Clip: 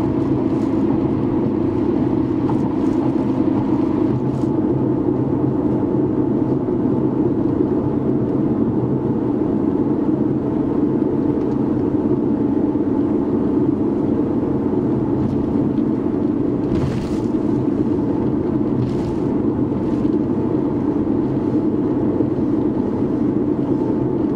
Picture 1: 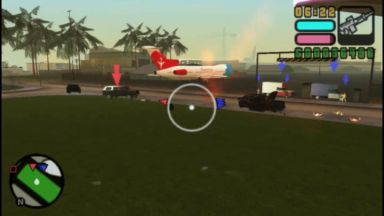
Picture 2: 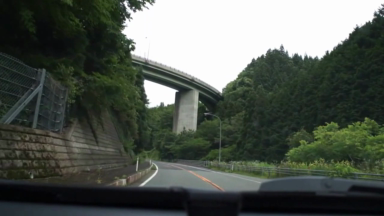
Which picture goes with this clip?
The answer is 2